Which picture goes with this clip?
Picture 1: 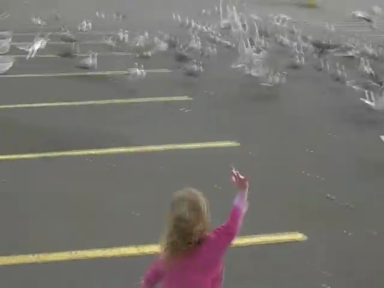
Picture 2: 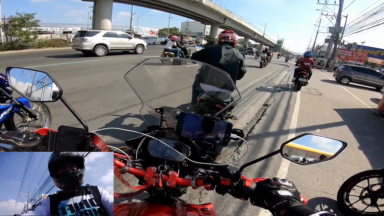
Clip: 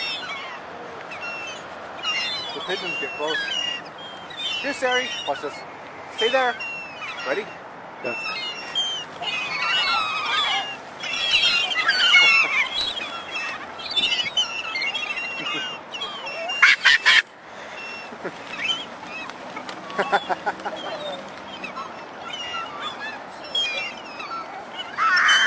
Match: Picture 1